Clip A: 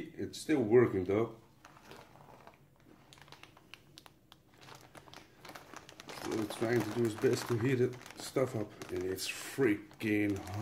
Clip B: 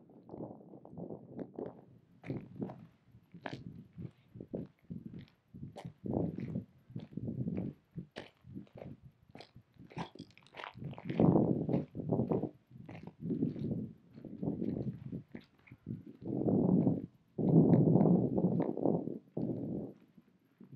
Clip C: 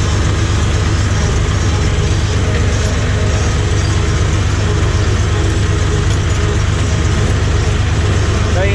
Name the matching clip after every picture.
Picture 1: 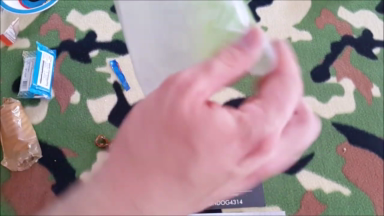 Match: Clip A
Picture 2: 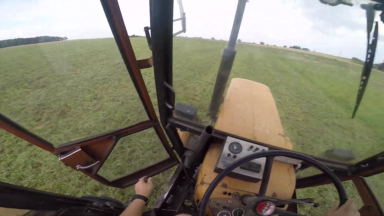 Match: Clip C